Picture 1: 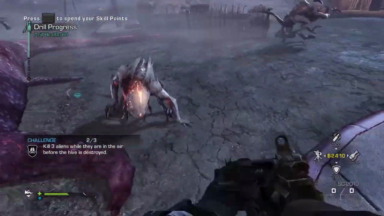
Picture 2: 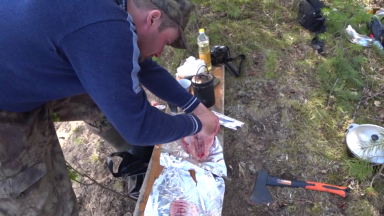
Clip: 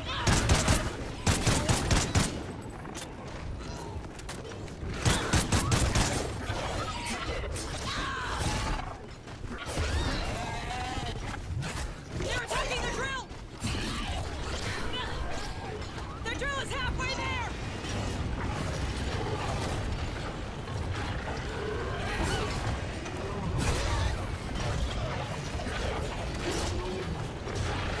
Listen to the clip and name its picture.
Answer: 1